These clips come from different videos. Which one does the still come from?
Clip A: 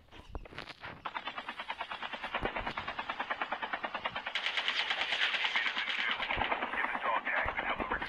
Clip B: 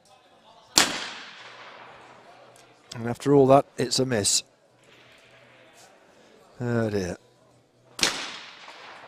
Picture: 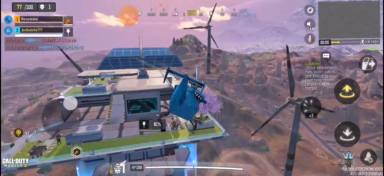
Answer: A